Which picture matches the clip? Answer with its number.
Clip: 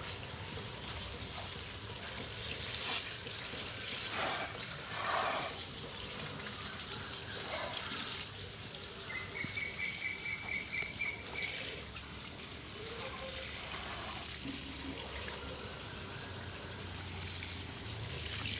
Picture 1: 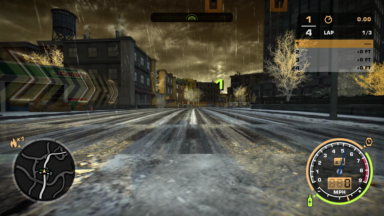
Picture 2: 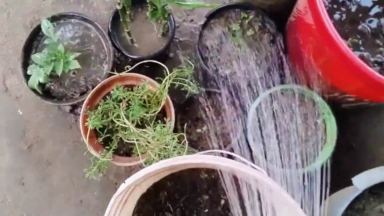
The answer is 2